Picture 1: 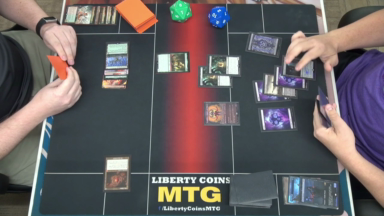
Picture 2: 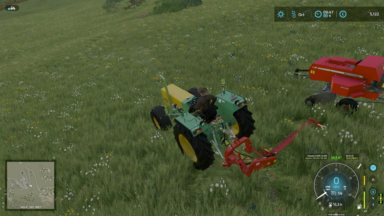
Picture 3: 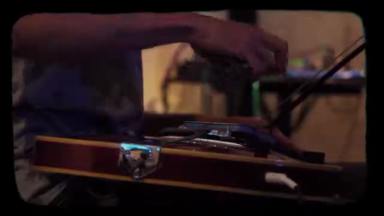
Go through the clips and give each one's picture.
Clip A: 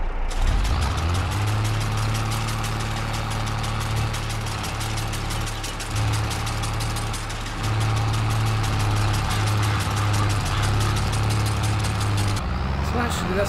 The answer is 2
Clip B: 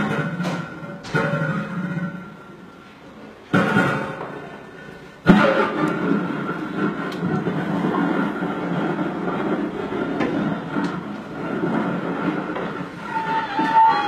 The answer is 3